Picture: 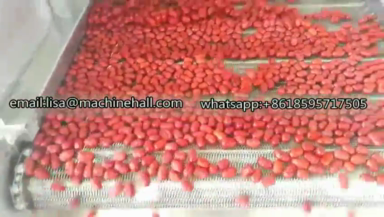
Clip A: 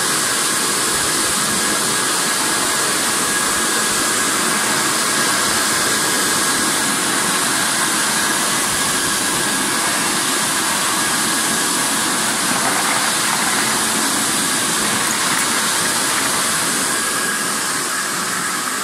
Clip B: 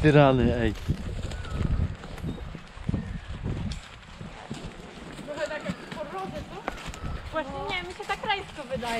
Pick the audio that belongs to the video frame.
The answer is A